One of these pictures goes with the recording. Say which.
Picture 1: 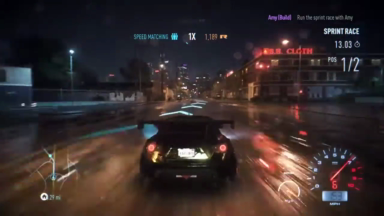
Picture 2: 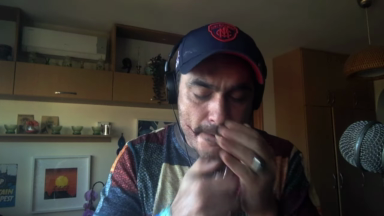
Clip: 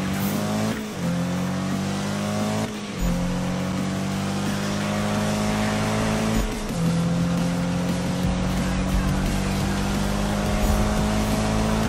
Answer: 1